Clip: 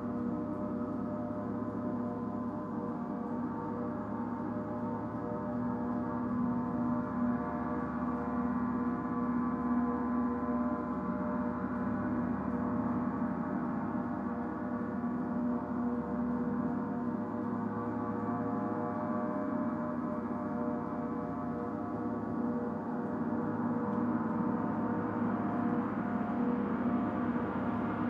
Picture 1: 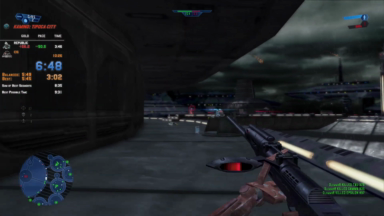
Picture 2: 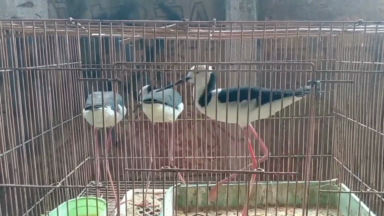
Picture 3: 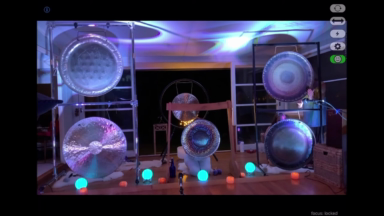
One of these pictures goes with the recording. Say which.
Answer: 3